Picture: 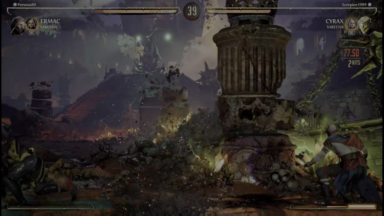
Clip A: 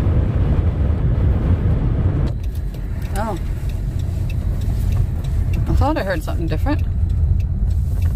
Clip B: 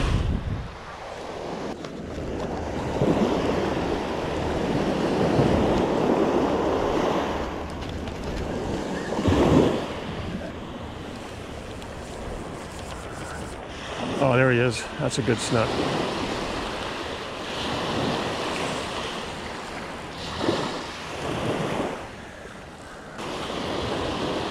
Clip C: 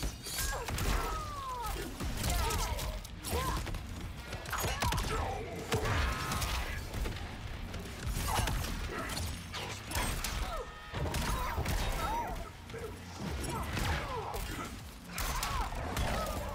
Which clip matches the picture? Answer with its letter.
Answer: C